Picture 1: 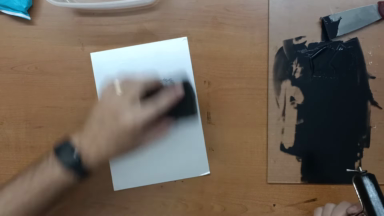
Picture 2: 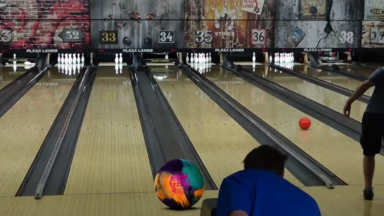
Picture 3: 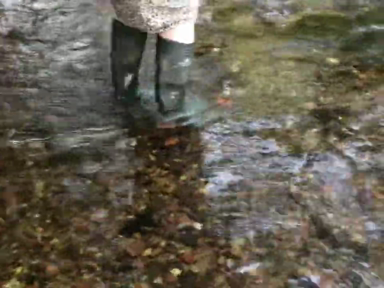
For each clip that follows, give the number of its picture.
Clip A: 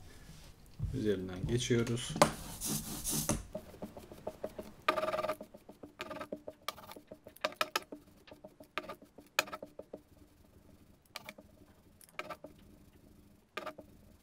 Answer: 1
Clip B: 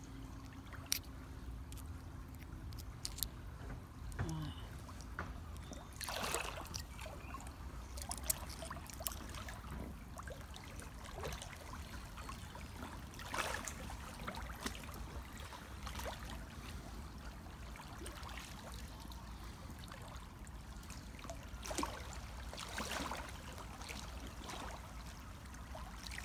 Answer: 3